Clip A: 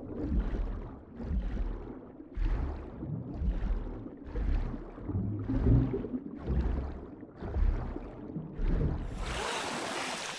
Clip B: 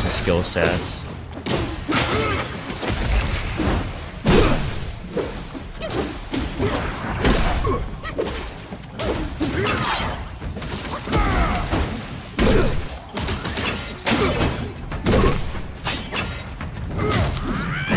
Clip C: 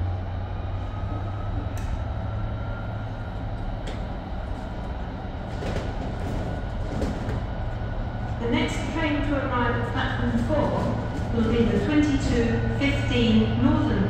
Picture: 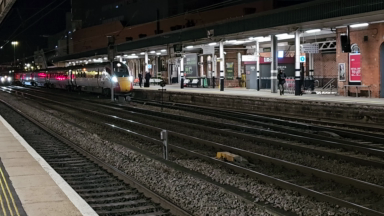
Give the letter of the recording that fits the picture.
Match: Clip C